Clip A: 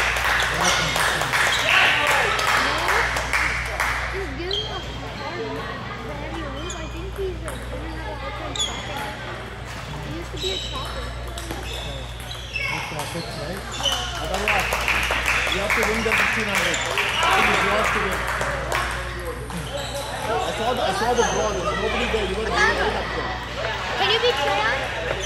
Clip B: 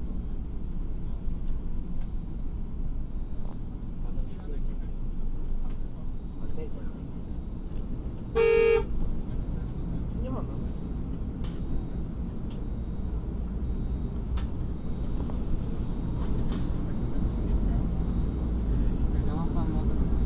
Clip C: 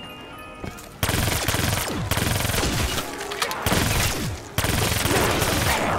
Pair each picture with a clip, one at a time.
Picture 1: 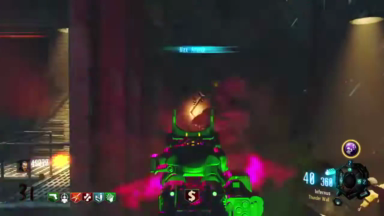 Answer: C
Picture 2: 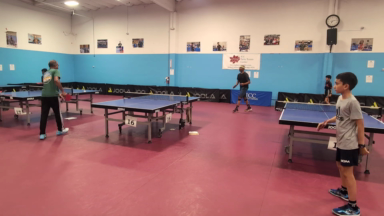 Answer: A